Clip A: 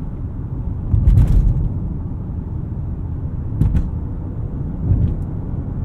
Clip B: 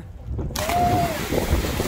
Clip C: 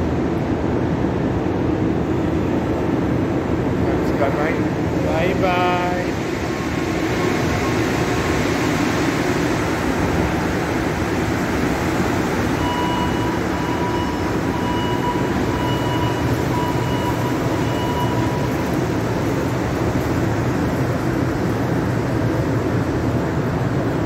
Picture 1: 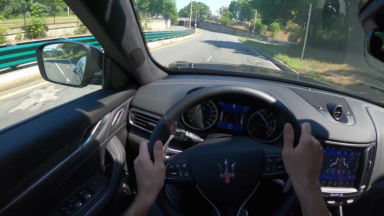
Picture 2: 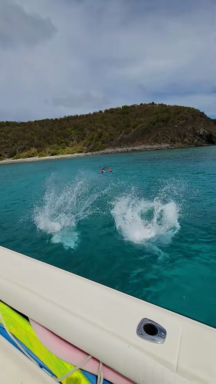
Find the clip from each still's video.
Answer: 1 A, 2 B